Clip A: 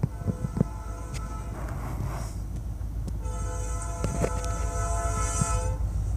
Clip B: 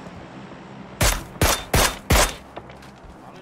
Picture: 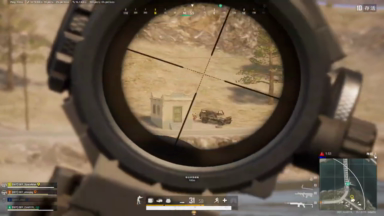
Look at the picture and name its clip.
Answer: B